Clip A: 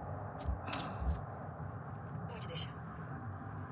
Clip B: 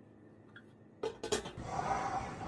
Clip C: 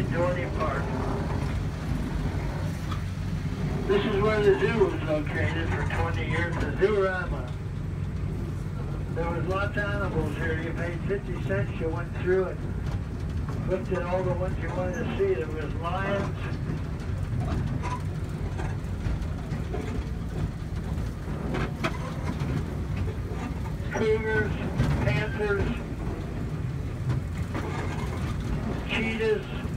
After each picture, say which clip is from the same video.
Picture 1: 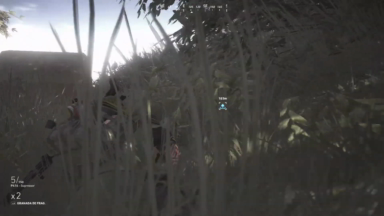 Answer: A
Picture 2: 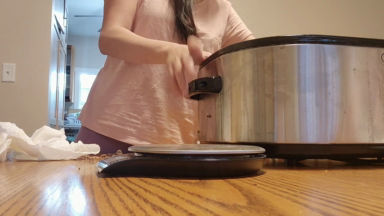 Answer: B